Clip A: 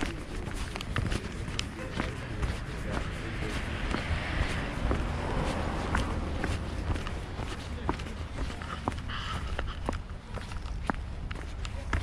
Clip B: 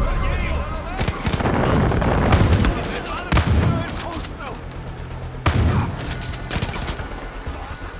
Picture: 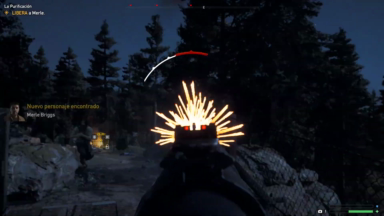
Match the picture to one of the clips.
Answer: B